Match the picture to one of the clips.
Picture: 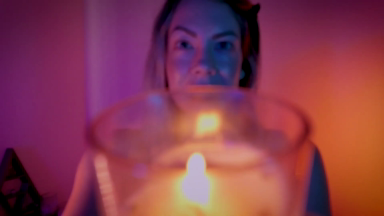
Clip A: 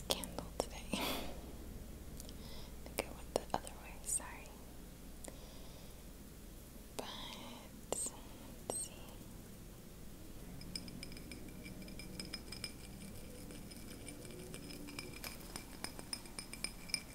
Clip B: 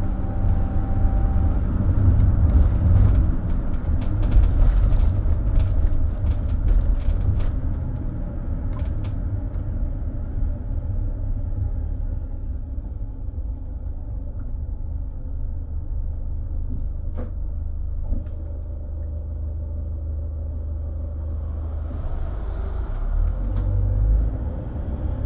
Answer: A